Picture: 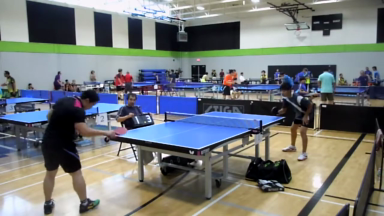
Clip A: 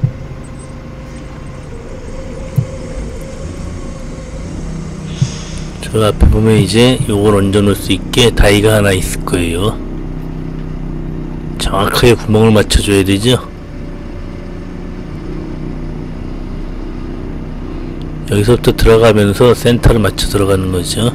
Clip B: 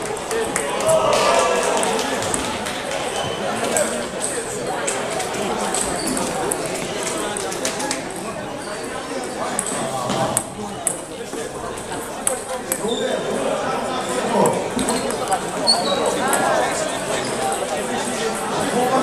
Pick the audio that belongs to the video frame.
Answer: B